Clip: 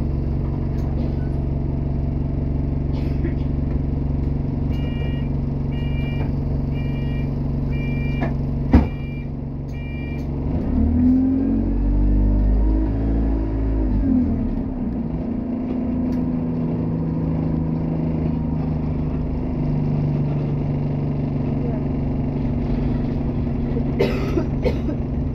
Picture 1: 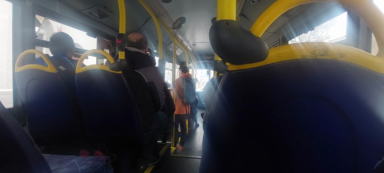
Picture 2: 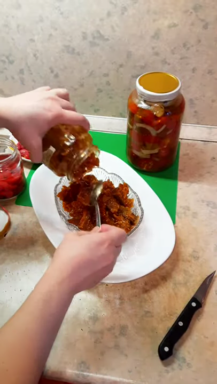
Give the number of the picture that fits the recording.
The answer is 1